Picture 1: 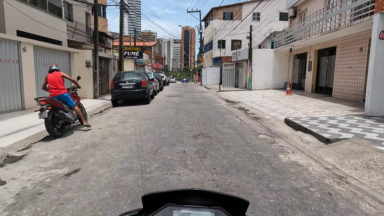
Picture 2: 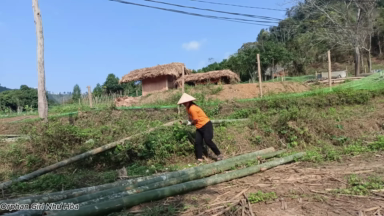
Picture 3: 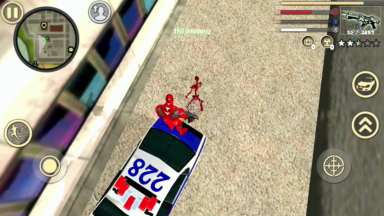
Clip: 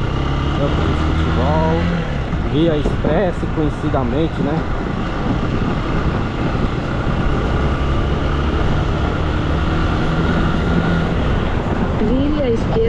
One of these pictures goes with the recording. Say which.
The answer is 1